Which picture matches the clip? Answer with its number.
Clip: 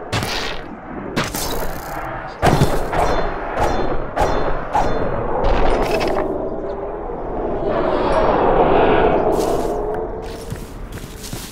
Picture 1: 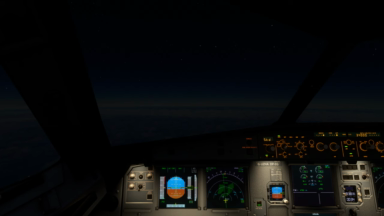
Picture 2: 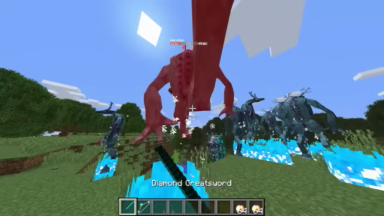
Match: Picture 2